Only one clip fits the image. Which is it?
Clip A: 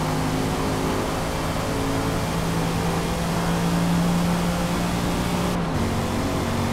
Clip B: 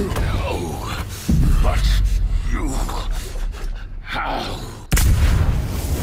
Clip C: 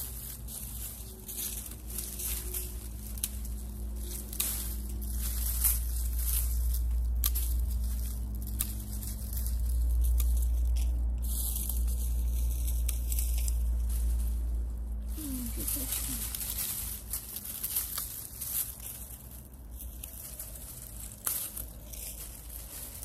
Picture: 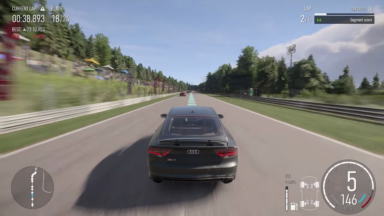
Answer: A